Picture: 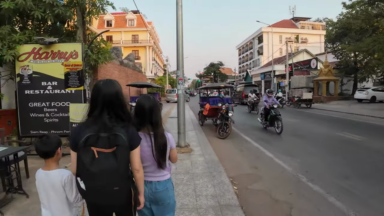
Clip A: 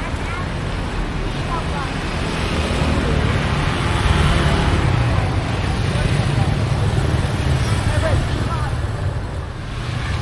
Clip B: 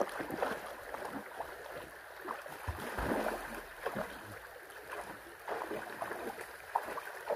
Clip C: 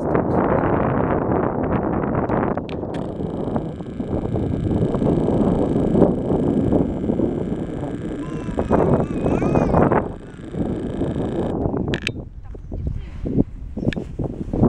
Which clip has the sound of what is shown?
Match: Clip A